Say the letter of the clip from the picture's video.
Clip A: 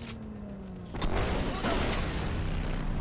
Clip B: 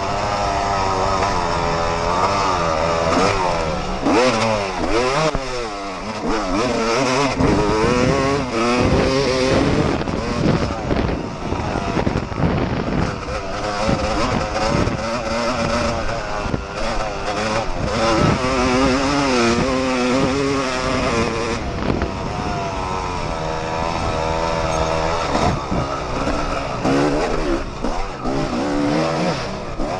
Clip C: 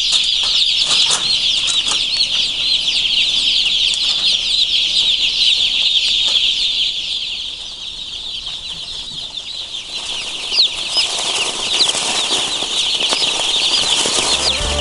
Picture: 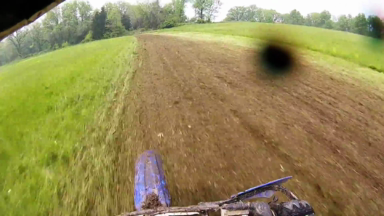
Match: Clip B